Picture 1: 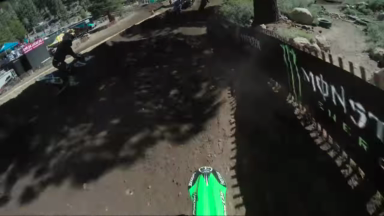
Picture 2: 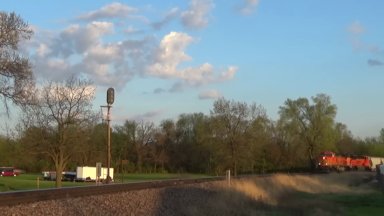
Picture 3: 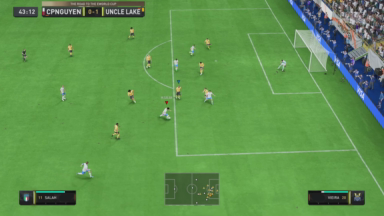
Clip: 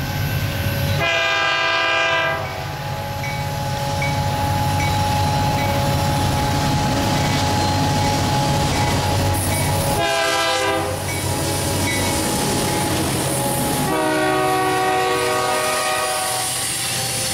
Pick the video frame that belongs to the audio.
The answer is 2